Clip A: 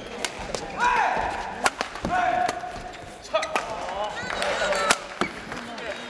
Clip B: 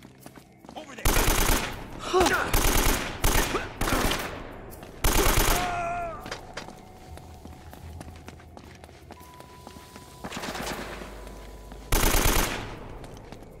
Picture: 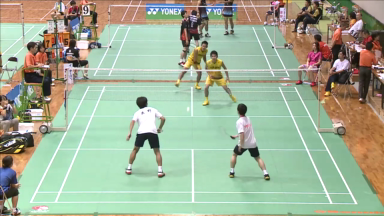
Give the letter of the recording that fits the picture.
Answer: A